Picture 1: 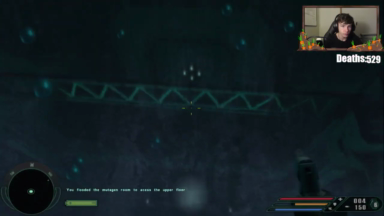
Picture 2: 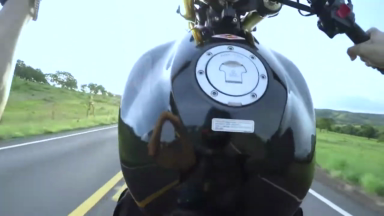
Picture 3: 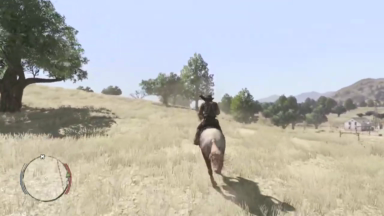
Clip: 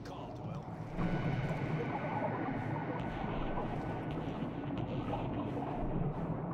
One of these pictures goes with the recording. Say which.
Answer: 1